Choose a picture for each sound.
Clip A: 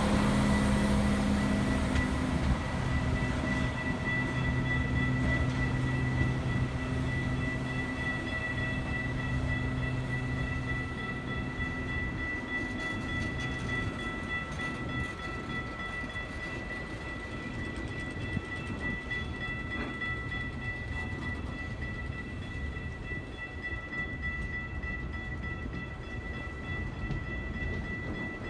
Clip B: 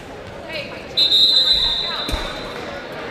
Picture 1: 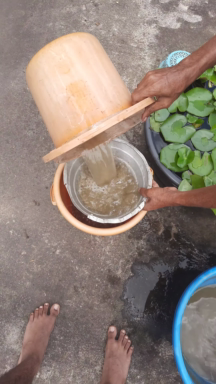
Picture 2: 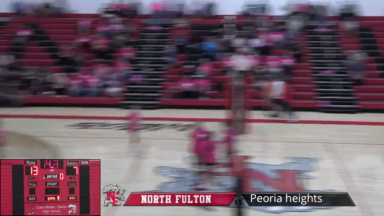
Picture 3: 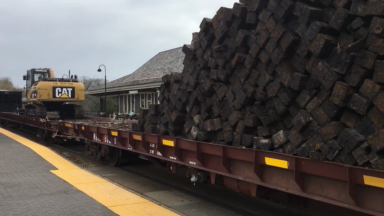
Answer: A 3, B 2